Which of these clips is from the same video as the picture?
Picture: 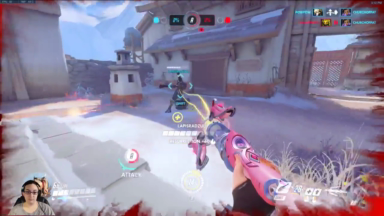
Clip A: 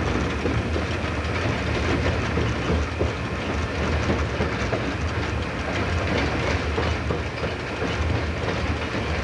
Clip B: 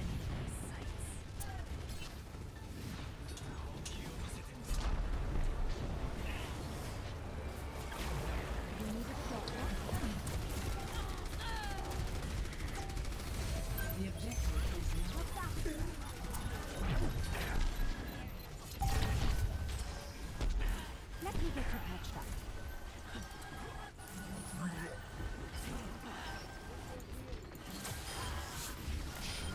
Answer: B